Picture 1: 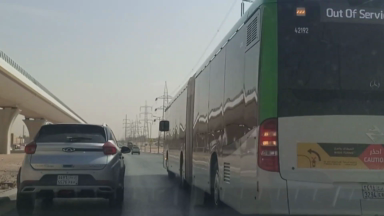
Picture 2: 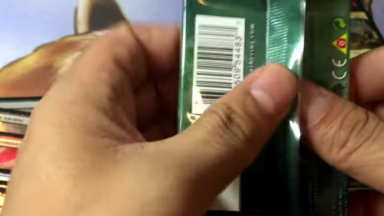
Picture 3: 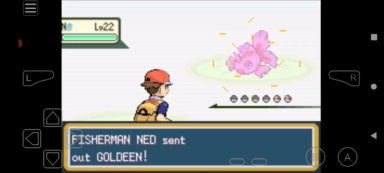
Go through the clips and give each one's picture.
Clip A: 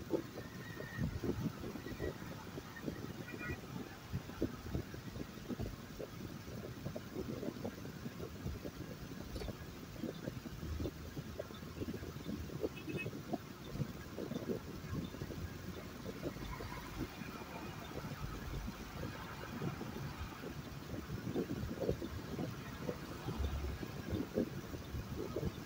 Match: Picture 1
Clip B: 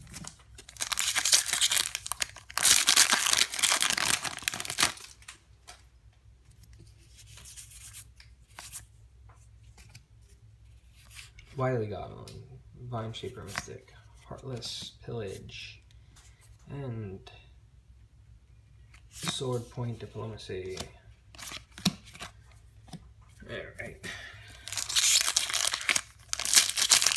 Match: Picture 2